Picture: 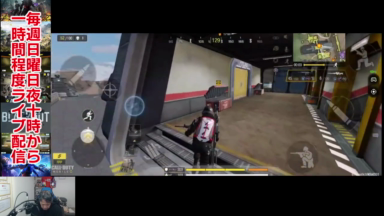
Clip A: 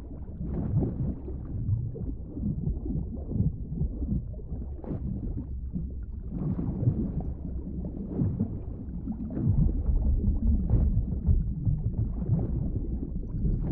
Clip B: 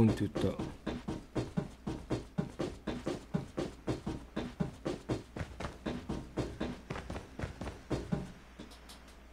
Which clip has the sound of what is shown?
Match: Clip B